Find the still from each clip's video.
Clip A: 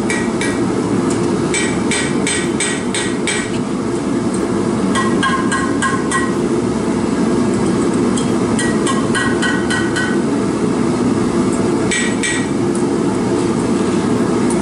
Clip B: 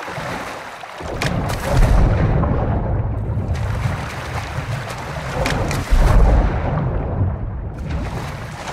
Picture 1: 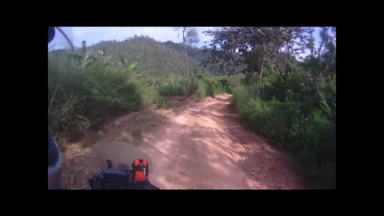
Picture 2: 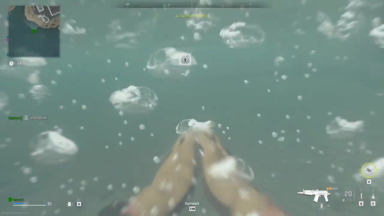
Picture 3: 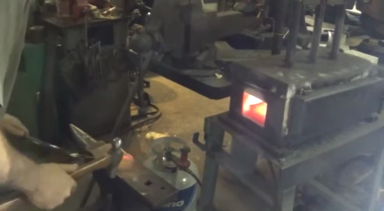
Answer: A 3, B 2